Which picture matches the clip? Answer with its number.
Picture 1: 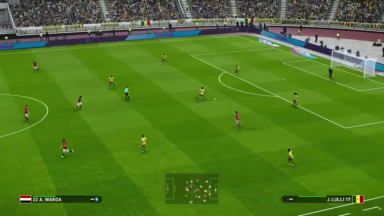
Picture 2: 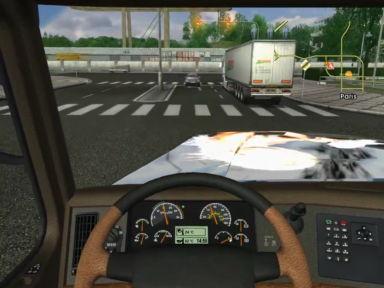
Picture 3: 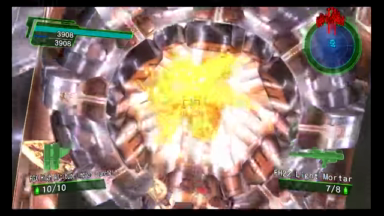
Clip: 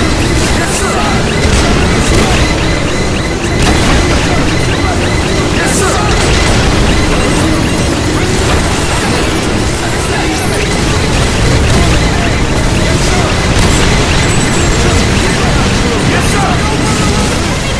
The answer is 3